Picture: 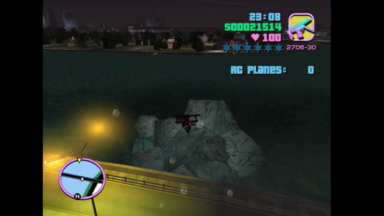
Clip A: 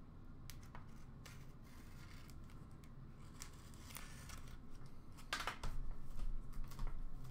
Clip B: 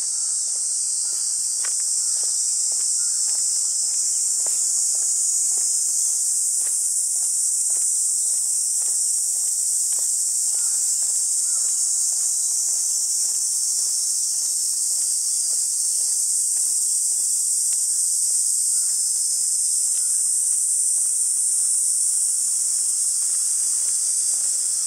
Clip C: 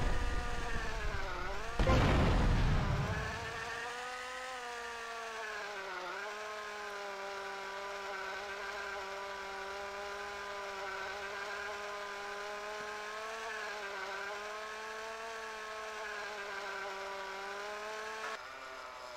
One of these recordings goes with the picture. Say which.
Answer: C